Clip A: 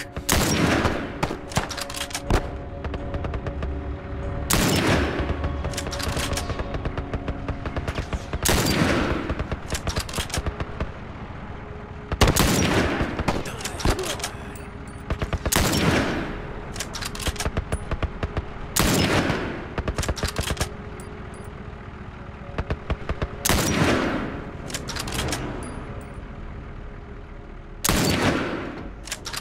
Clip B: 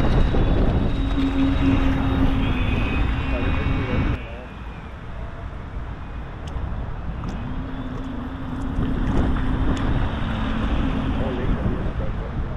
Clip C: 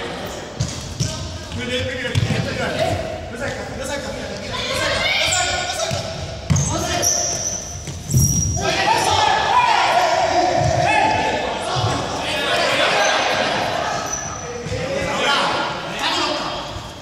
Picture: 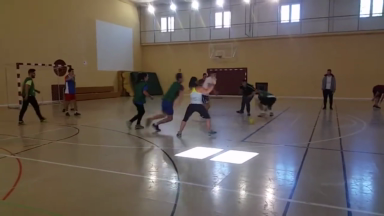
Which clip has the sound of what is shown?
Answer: C